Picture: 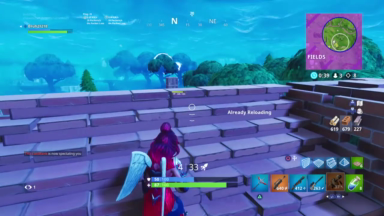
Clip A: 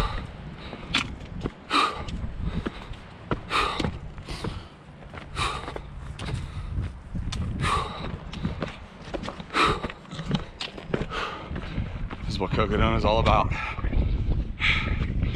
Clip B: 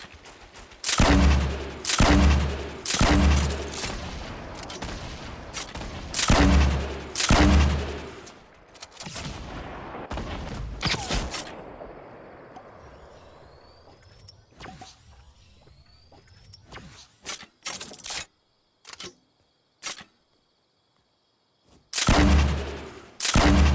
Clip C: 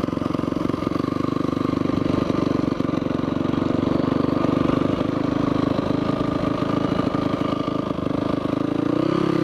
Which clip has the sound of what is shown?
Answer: B